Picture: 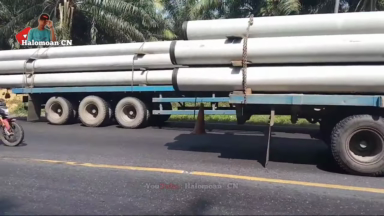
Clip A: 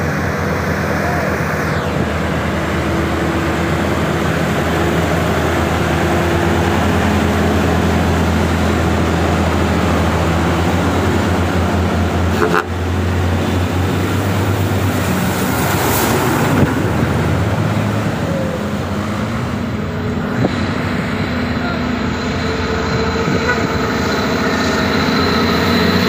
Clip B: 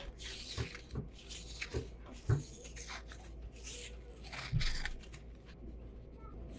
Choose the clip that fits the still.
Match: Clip A